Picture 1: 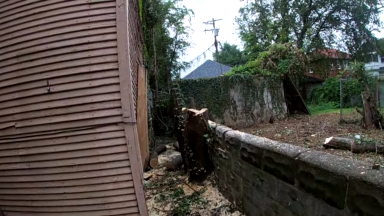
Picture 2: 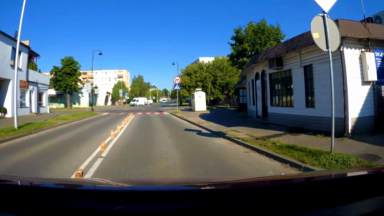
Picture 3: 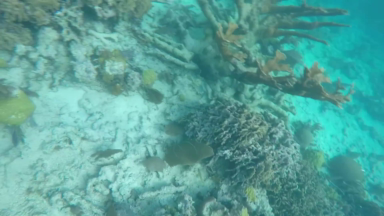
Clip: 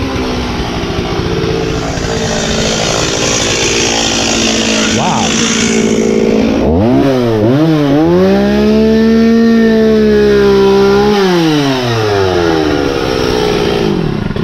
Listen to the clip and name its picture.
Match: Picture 1